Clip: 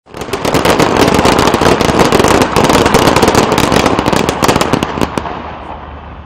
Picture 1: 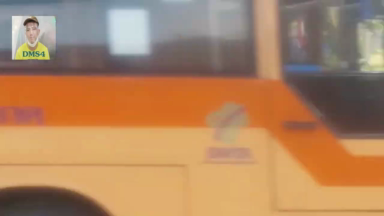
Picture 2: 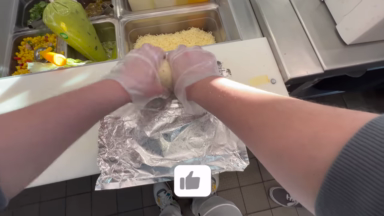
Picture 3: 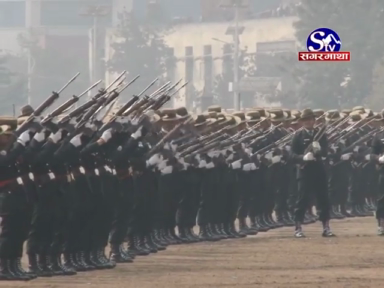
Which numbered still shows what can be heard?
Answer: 3